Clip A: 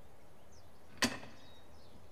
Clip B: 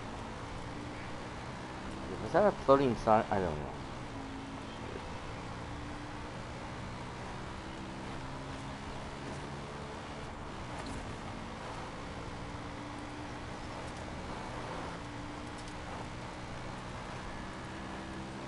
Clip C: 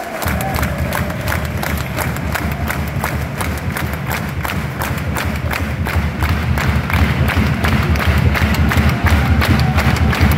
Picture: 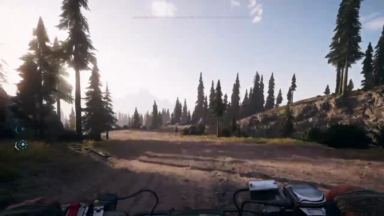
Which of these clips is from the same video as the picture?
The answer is B